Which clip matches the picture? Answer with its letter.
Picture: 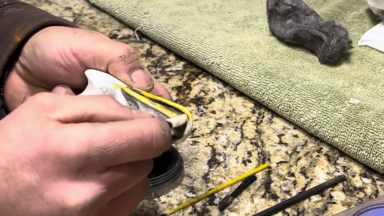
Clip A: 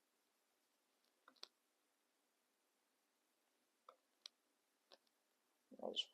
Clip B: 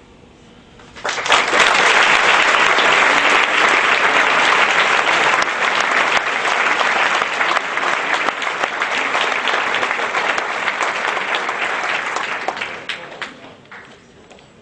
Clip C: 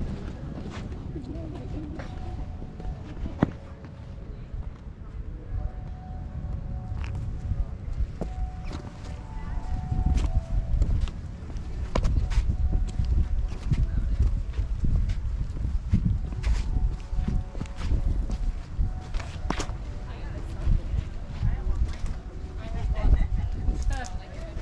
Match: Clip A